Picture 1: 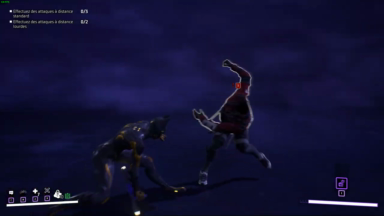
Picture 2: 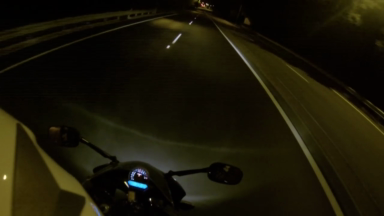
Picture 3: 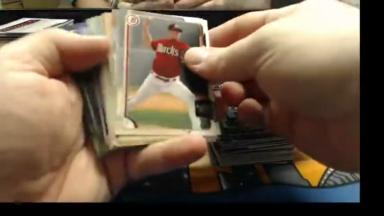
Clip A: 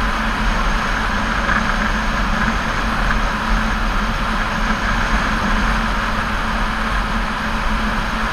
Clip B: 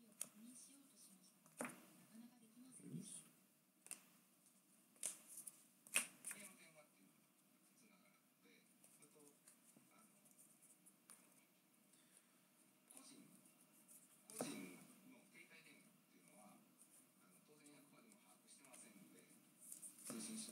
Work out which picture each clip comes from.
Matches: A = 2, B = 3